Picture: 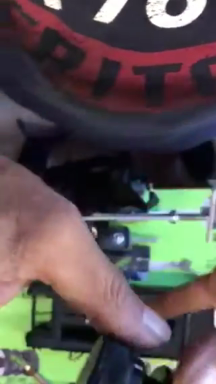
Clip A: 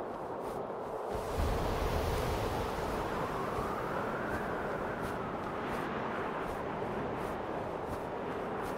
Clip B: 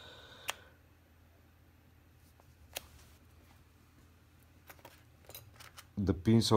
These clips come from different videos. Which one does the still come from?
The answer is B